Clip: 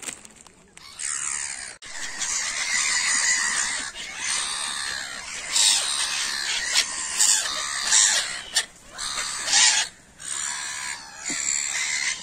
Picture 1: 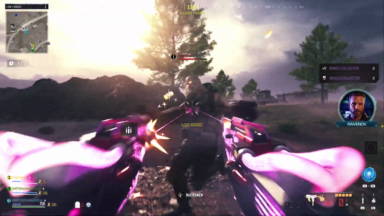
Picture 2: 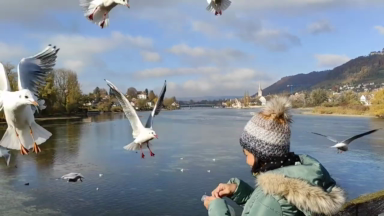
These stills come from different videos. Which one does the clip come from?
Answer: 2